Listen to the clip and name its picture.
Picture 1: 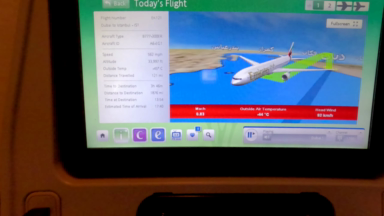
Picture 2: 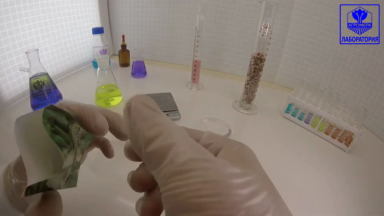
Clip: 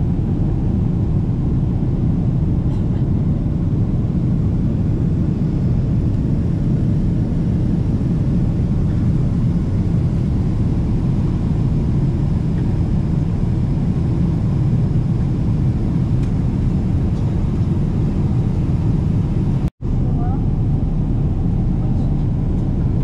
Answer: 1